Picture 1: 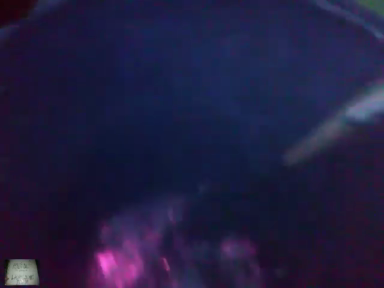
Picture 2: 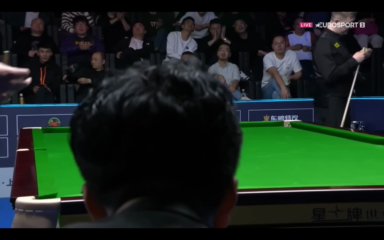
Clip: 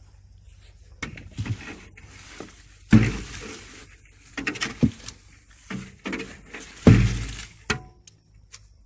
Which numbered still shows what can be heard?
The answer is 1